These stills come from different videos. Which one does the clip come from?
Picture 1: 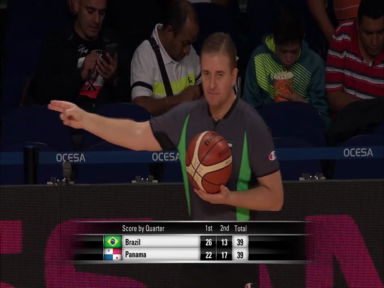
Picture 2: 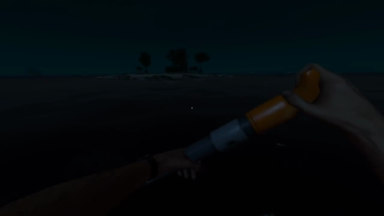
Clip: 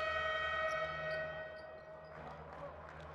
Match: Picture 1